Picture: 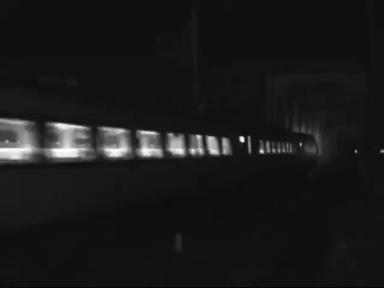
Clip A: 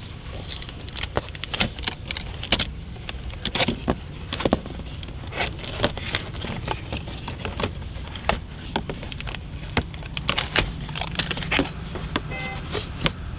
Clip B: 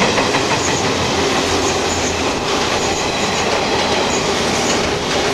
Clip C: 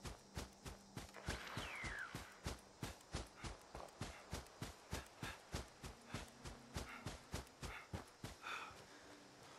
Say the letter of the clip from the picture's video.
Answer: B